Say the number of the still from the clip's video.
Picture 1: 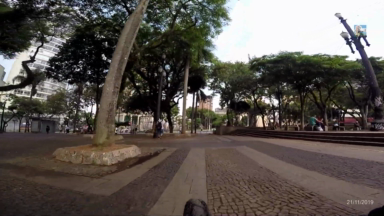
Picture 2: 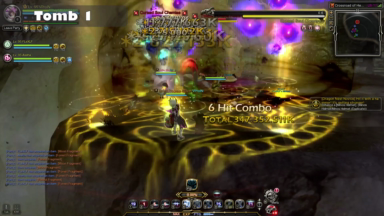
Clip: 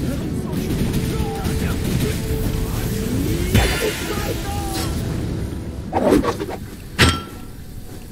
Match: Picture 2